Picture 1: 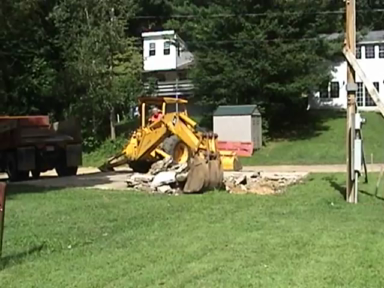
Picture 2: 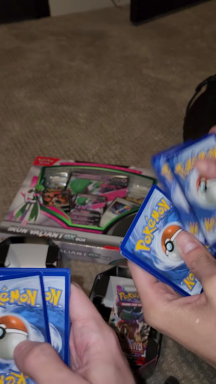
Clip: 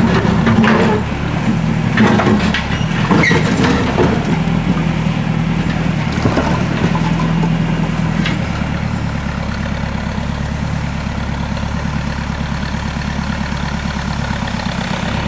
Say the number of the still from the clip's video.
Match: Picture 1